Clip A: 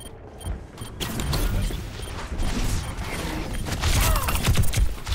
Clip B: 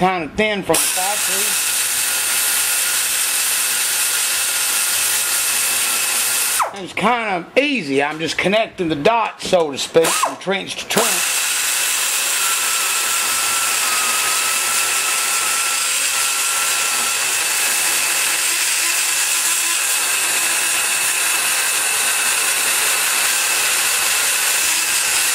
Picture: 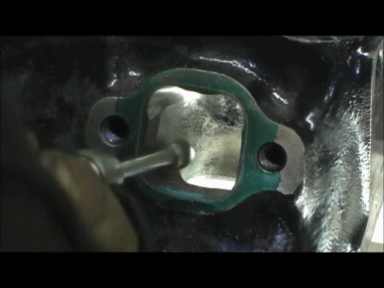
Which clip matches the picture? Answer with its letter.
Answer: B